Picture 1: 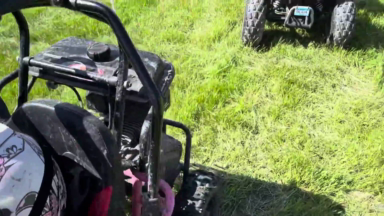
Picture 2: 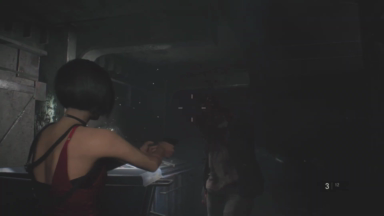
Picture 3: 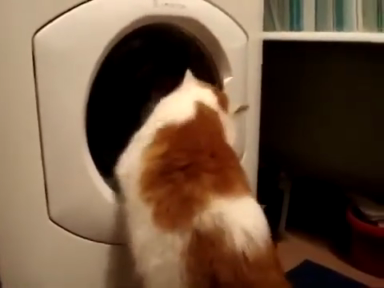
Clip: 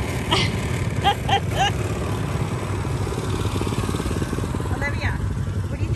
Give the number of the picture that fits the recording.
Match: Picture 1